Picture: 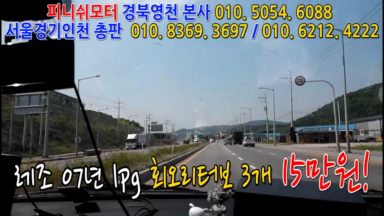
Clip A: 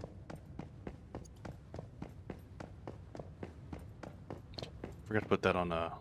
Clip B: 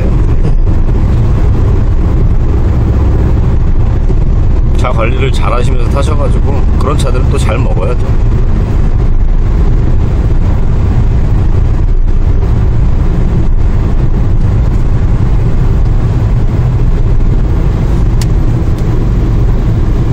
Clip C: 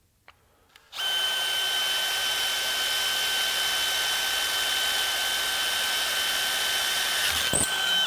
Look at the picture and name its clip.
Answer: B